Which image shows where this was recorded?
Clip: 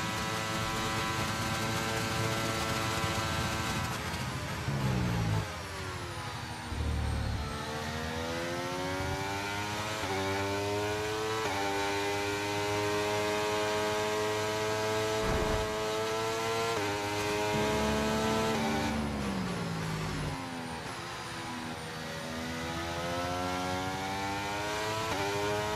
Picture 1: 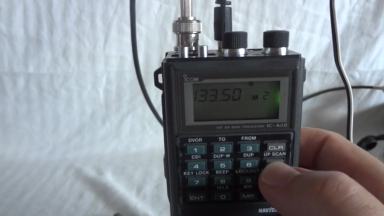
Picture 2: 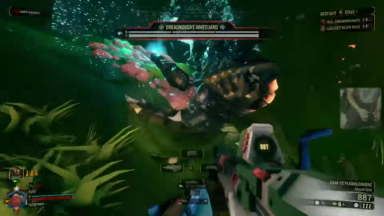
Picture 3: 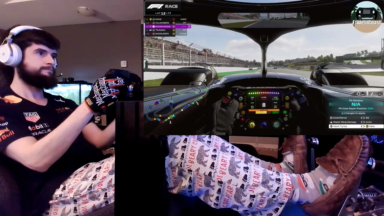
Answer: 3